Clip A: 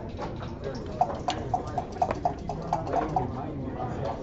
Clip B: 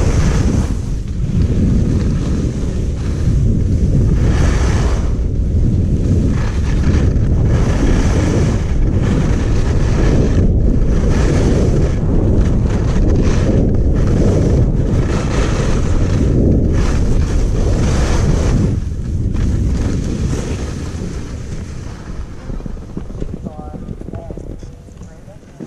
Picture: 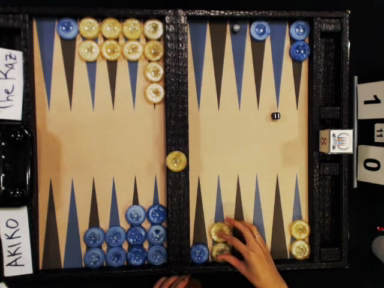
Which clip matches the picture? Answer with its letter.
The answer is A